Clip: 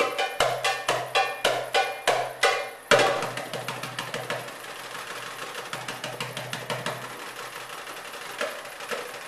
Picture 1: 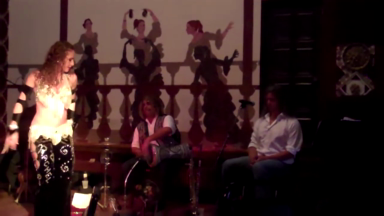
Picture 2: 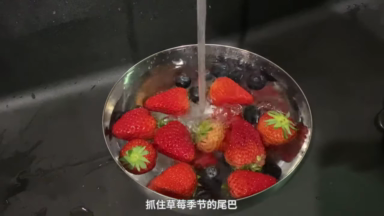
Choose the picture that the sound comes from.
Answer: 1